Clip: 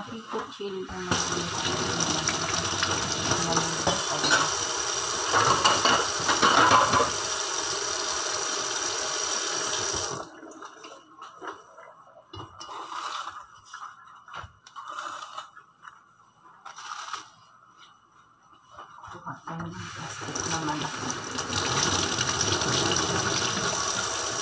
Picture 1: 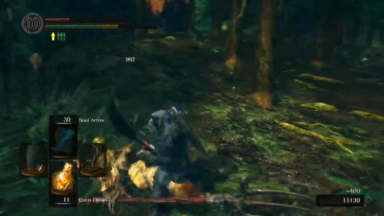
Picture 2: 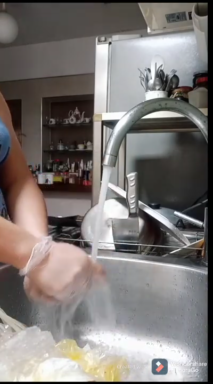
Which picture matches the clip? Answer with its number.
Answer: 2